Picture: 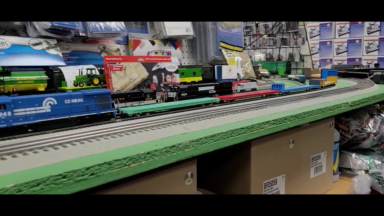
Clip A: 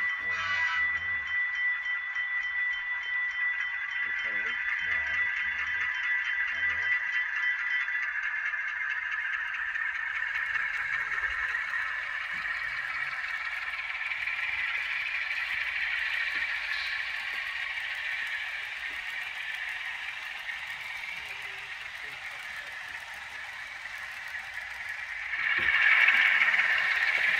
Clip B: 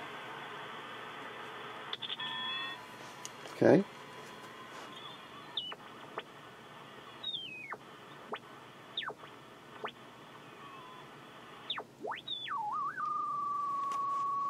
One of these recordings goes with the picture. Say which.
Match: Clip A